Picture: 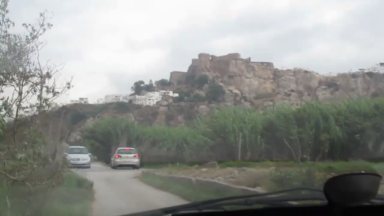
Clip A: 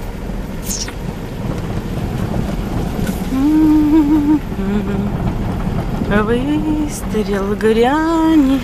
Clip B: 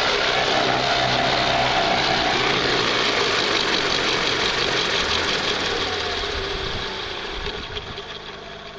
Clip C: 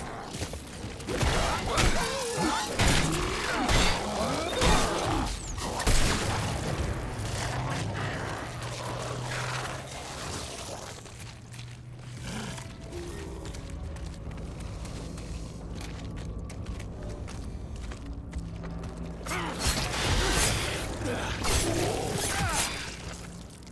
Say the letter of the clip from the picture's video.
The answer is A